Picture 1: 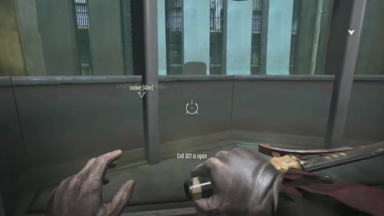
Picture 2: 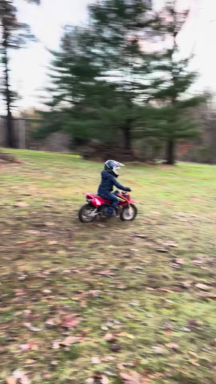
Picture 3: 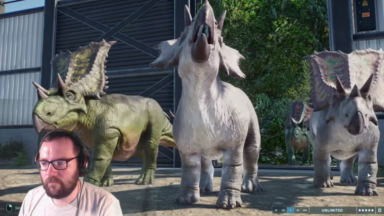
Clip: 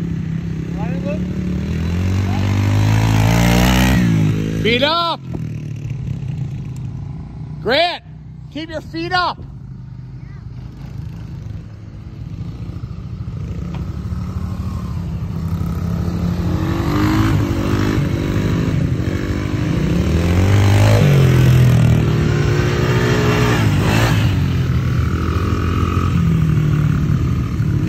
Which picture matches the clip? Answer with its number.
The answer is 2